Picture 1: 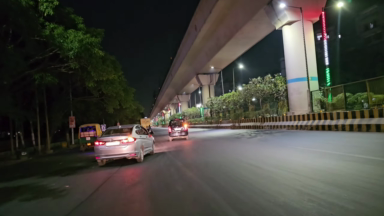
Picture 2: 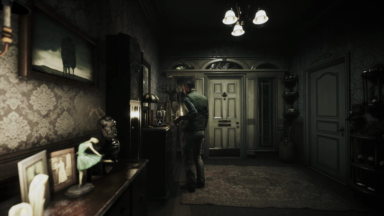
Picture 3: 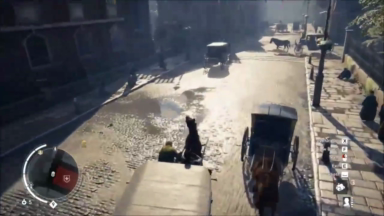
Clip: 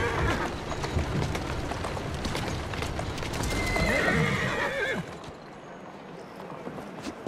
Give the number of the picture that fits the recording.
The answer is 3